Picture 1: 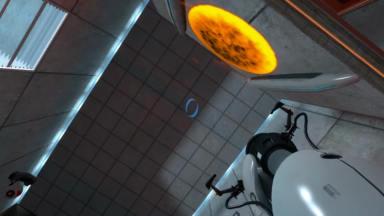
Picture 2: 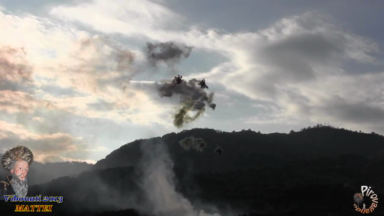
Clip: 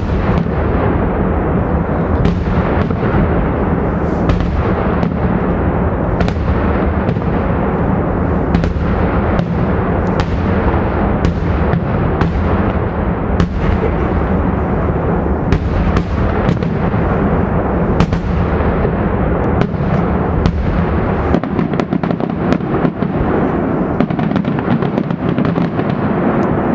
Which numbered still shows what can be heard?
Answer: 2